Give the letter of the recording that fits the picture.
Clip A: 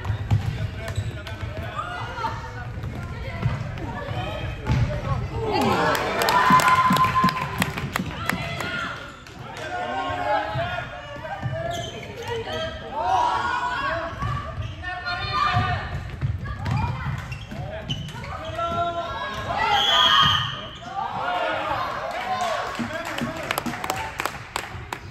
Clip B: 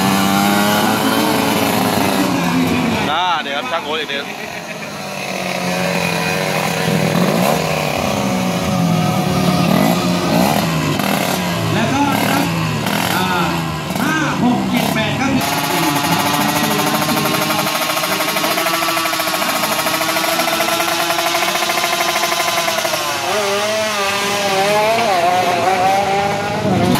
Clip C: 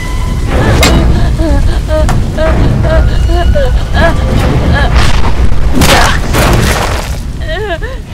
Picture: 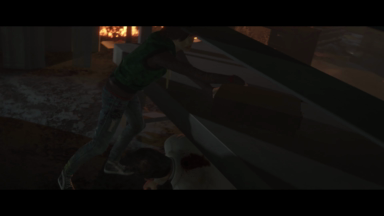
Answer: C